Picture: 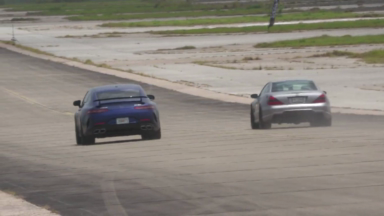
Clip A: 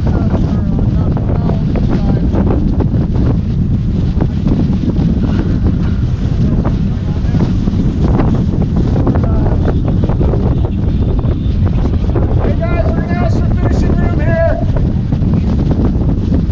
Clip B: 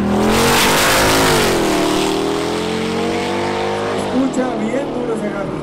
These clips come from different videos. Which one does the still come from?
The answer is B